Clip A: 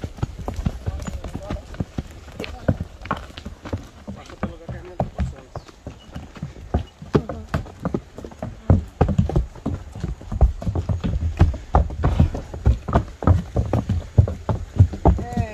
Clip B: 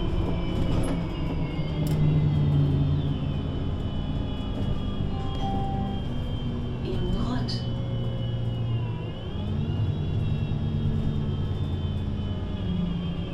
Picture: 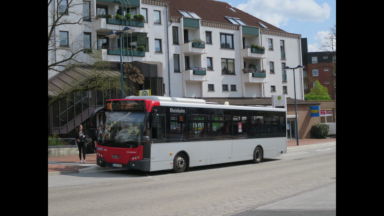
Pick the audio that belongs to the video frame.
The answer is B